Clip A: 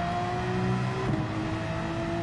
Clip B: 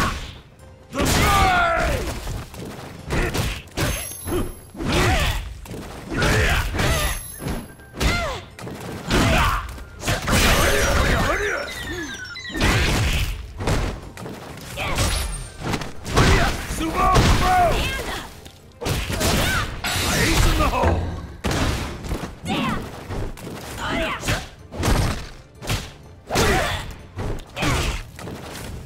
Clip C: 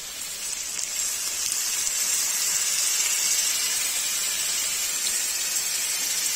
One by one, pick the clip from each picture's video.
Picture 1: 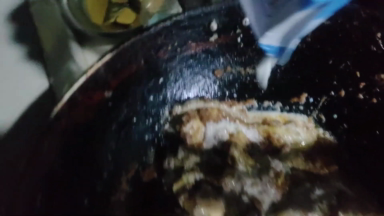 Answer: C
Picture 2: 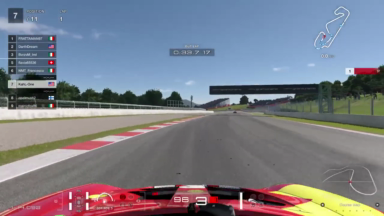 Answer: A